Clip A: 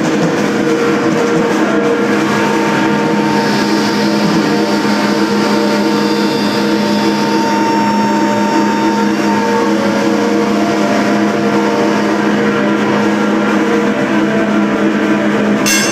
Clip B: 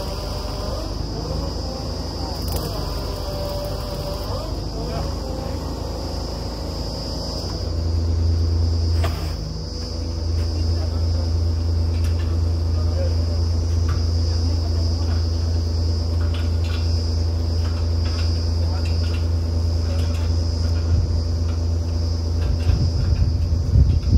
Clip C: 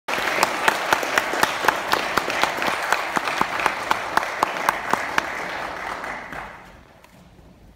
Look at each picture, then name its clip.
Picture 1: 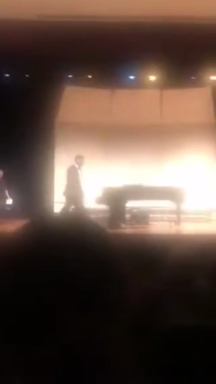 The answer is C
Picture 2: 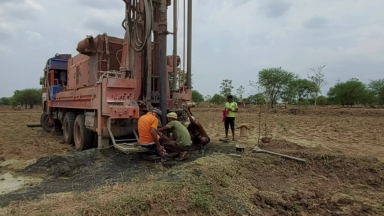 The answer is B